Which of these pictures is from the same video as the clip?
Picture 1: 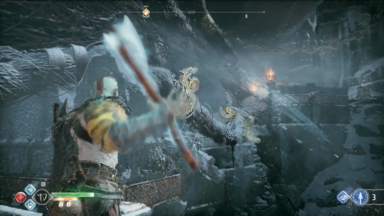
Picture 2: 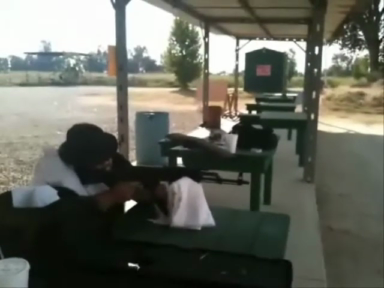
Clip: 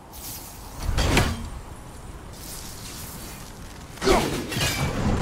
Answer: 1